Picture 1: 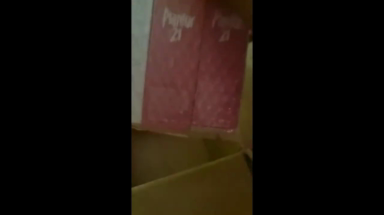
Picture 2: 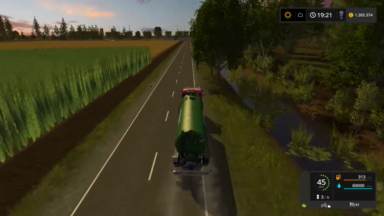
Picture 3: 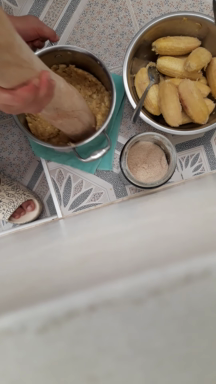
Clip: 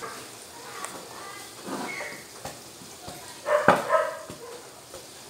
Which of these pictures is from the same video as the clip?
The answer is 3